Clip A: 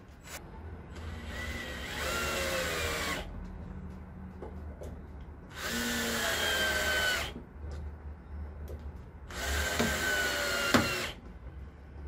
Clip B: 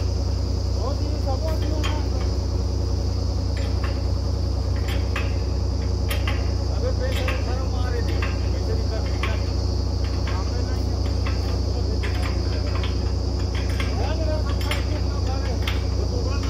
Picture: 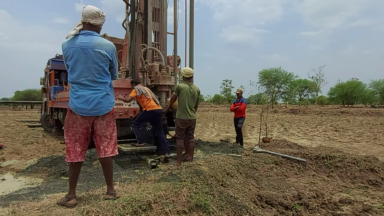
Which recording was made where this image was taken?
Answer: B